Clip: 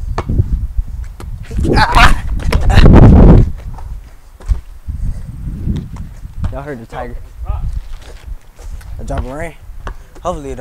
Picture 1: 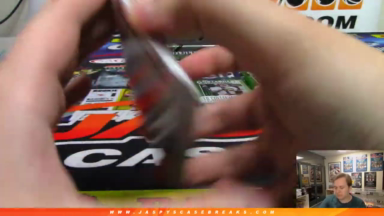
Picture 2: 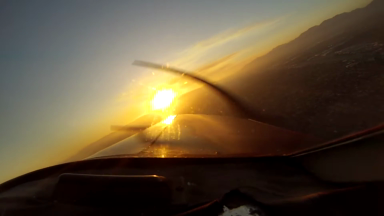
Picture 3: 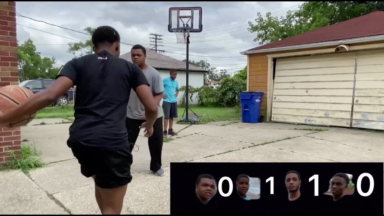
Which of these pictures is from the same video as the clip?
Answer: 3